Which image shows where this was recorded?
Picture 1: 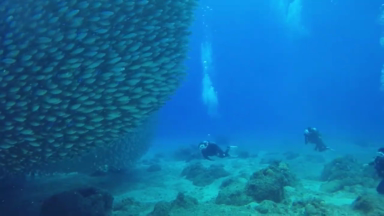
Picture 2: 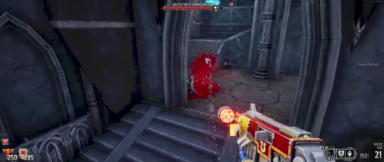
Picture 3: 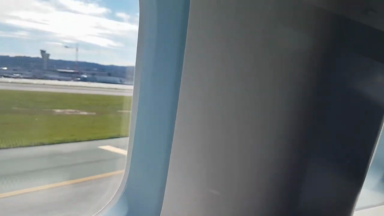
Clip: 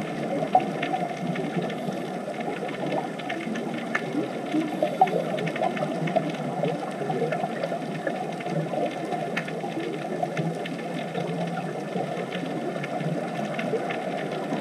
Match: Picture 1